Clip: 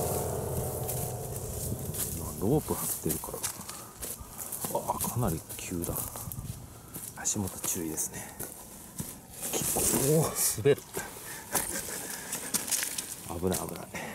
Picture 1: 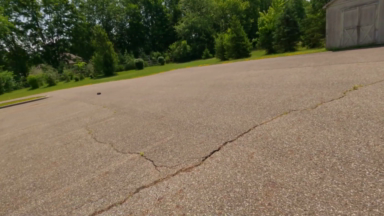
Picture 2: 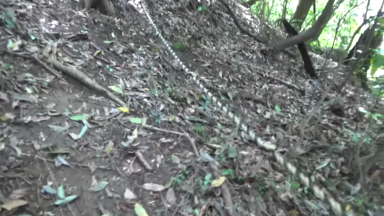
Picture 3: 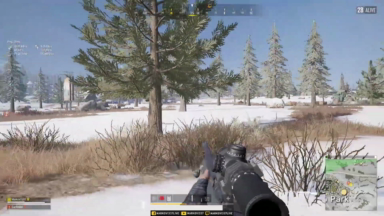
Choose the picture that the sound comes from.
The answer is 2